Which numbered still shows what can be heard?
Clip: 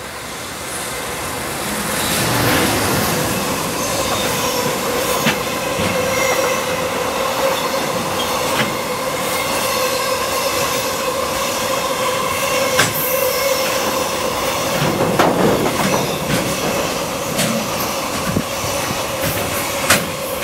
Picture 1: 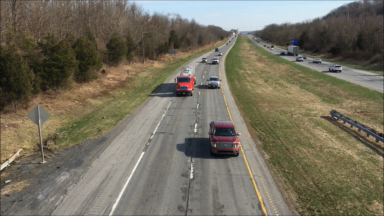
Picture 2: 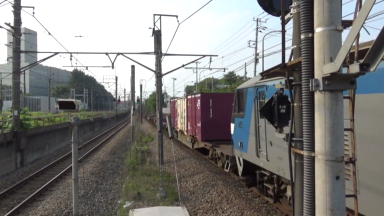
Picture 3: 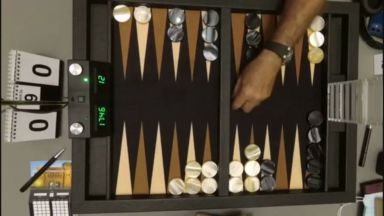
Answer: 2